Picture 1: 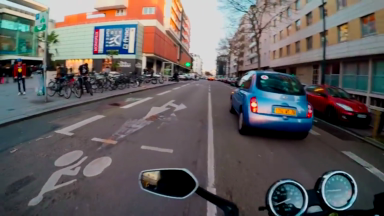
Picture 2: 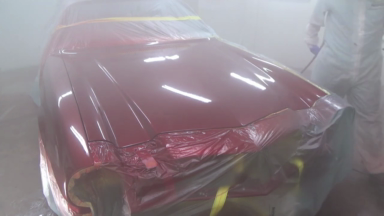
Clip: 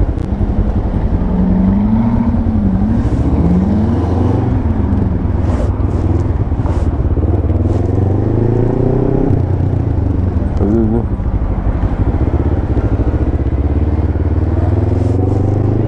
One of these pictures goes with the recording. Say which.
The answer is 1